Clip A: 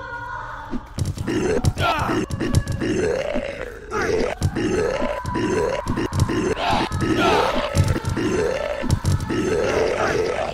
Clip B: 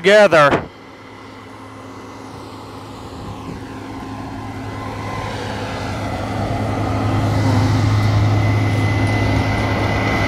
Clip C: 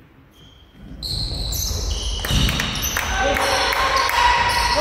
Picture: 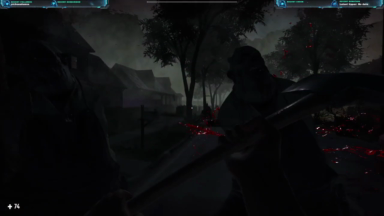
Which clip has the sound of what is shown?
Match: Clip A